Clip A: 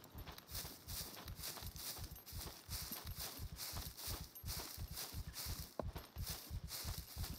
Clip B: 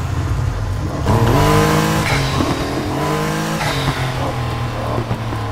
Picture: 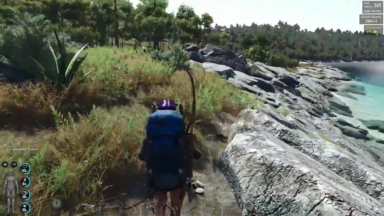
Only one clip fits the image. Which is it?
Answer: A